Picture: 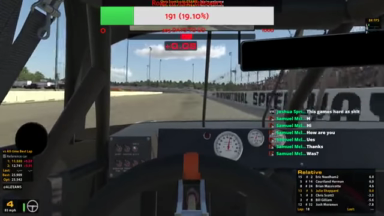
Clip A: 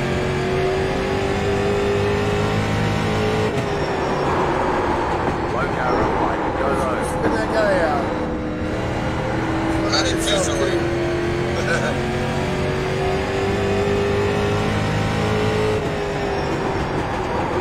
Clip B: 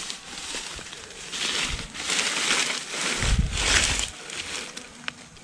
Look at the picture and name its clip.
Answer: A